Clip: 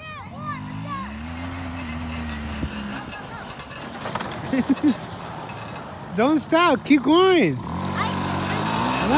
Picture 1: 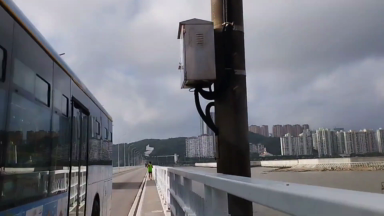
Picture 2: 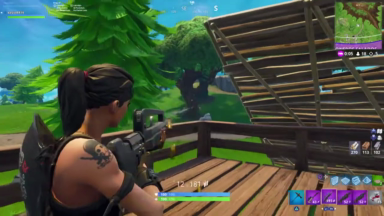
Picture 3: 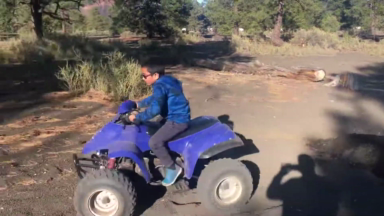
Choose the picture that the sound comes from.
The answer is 3